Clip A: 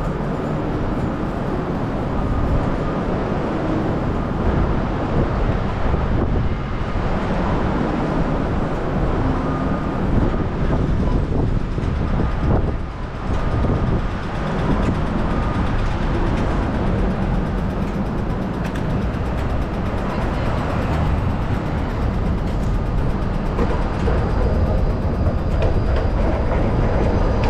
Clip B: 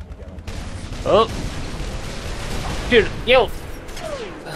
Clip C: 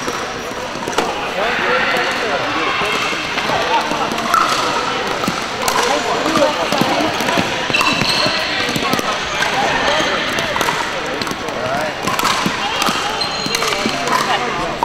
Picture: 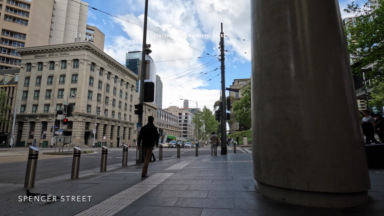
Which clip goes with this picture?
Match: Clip A